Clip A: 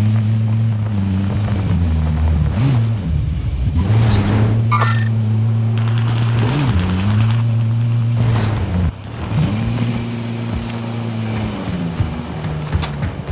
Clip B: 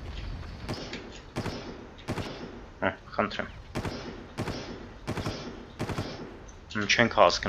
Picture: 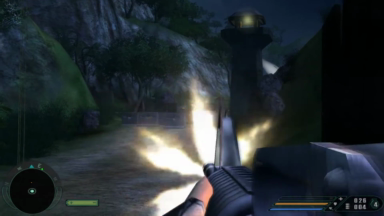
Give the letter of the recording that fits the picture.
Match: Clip B